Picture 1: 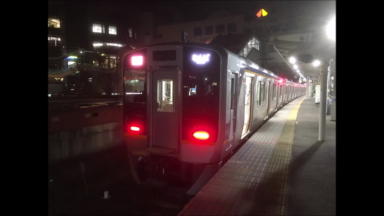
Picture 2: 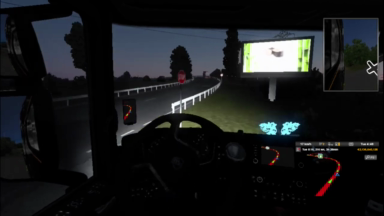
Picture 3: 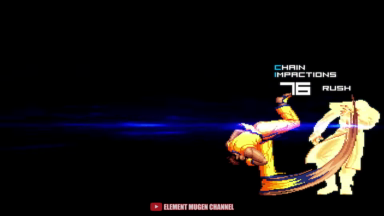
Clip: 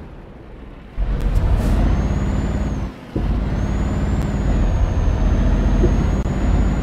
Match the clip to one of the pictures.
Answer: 2